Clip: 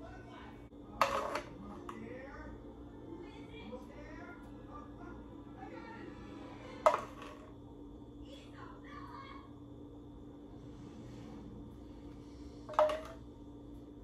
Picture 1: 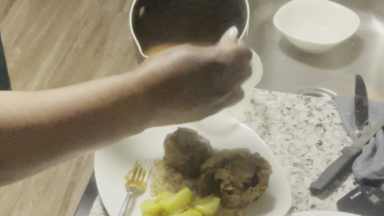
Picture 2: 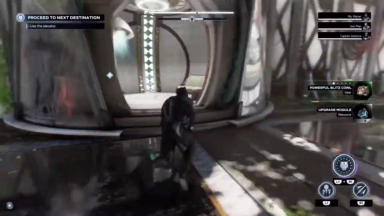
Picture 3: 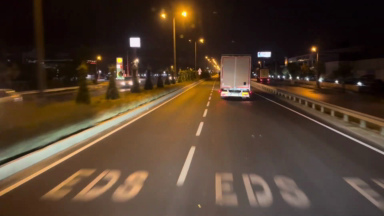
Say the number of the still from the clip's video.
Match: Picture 1